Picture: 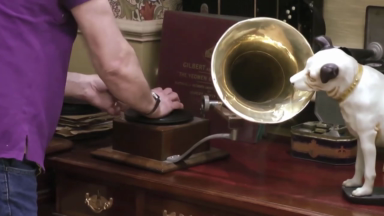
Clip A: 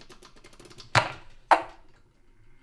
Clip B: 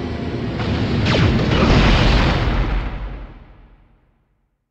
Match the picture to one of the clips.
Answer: A